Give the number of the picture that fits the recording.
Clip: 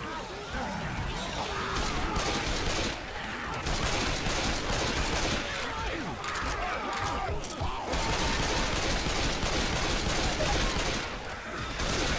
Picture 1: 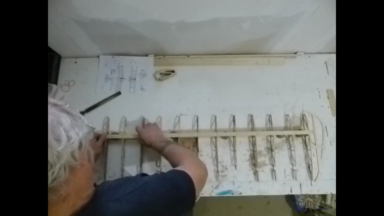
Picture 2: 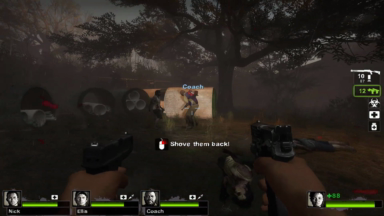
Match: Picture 2